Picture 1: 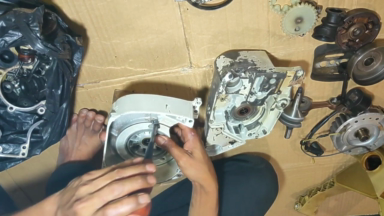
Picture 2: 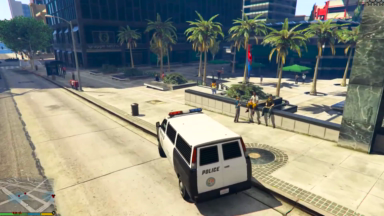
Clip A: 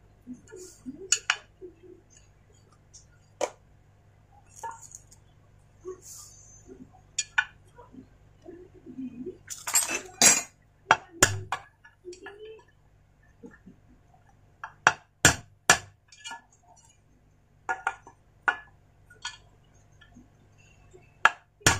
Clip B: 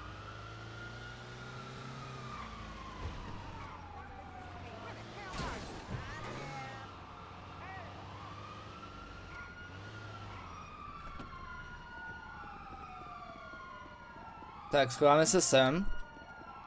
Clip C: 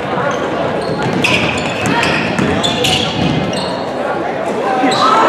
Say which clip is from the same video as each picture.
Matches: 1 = A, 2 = B